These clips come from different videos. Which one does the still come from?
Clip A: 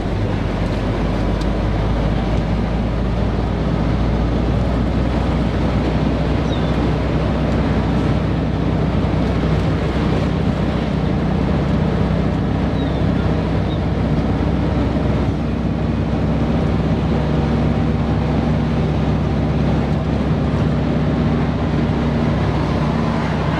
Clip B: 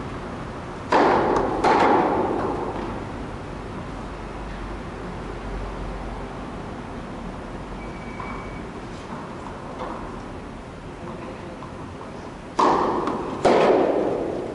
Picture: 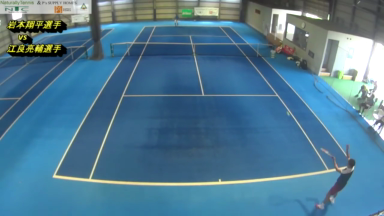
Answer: B